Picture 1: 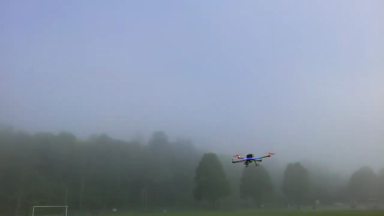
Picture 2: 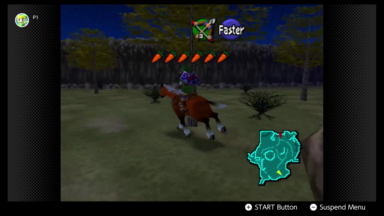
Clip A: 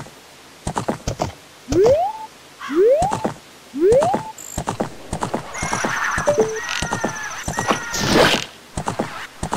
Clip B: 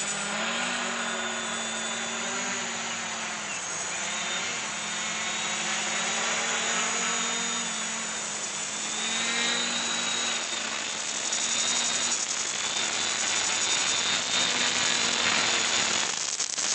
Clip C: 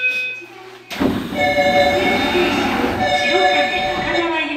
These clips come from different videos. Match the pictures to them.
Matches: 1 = B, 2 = A